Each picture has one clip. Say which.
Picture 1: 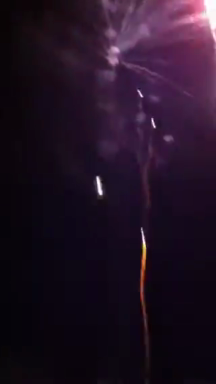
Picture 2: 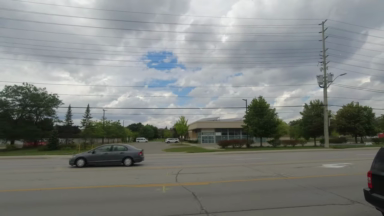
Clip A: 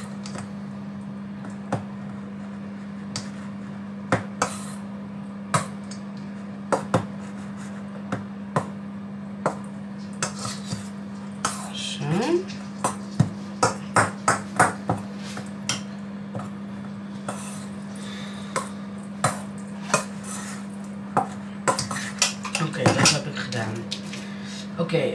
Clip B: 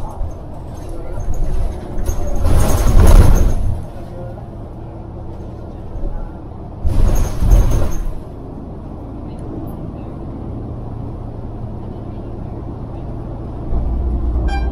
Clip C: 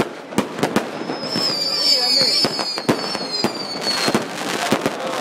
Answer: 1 C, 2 B